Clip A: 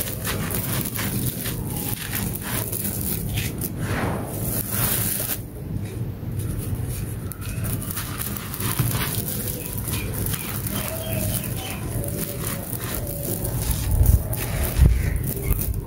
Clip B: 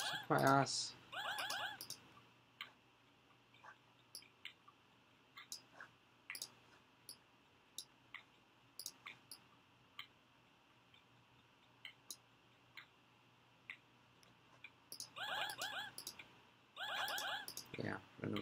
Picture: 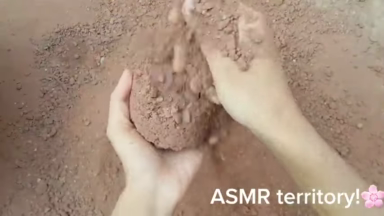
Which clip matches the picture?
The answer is A